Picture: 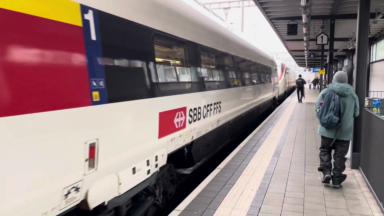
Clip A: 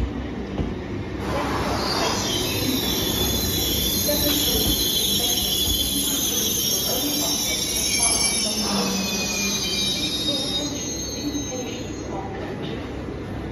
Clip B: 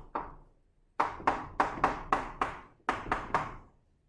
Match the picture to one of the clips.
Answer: A